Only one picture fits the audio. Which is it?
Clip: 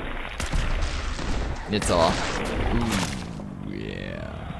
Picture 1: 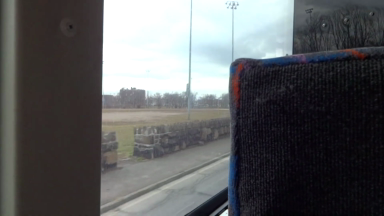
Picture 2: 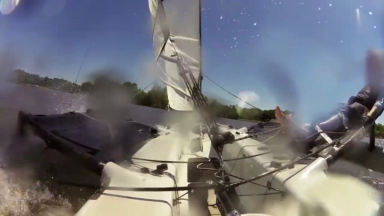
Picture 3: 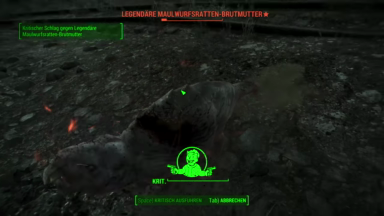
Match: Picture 3